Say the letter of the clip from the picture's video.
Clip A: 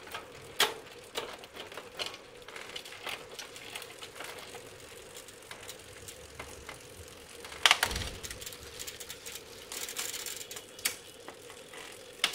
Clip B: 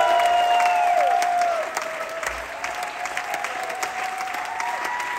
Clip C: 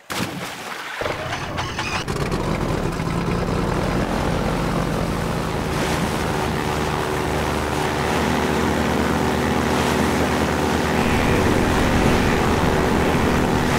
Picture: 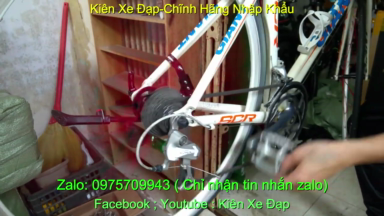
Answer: A